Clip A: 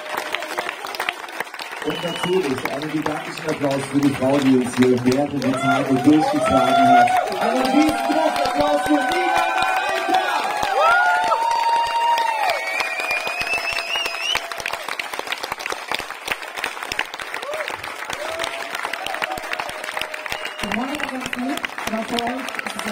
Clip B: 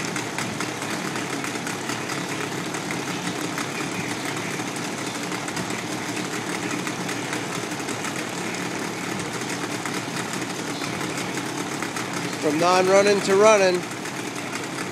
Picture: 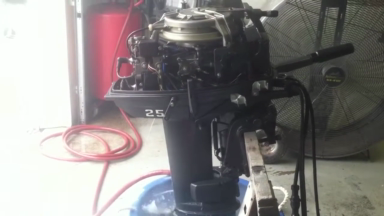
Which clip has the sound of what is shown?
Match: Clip B